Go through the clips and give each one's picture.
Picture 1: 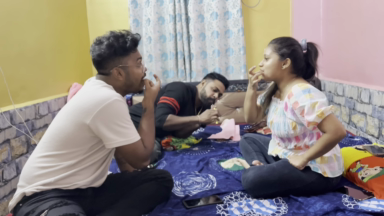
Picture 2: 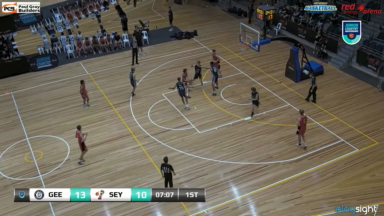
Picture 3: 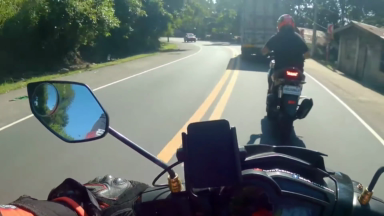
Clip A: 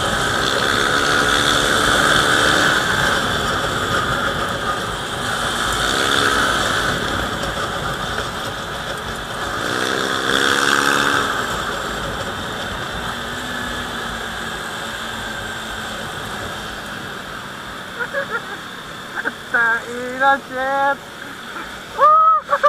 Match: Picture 3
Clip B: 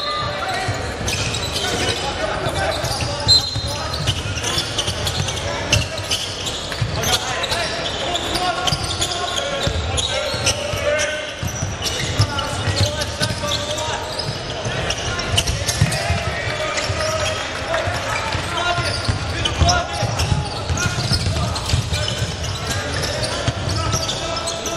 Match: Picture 2